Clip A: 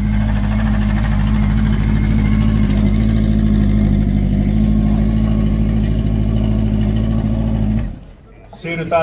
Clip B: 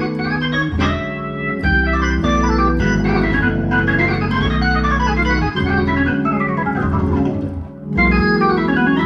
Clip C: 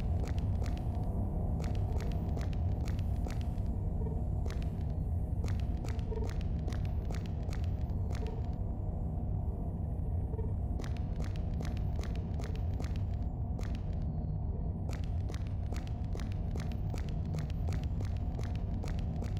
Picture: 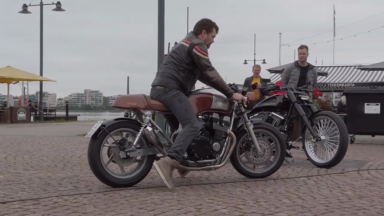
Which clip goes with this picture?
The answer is A